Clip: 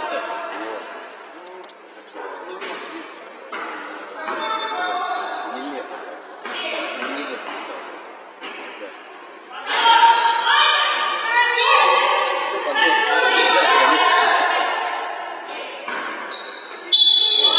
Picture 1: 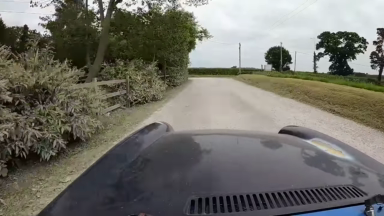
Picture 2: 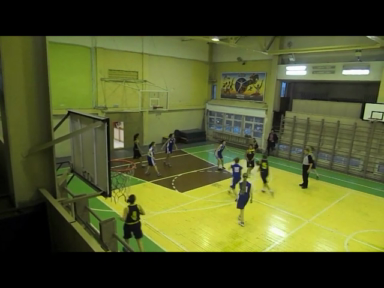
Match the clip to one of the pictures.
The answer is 2